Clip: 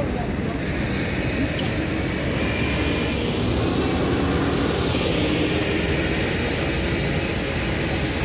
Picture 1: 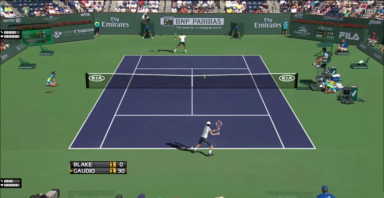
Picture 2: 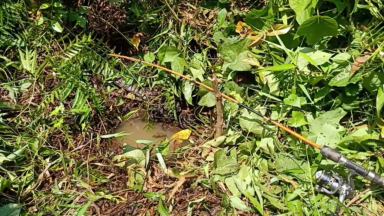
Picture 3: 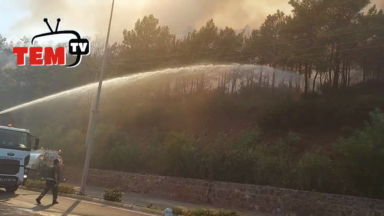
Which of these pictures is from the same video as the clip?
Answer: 3